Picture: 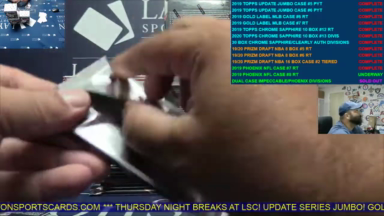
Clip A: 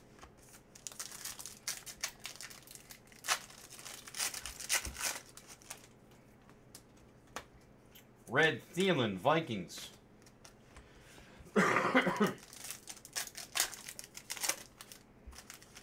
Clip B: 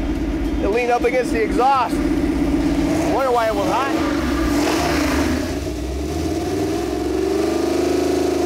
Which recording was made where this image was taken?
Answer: A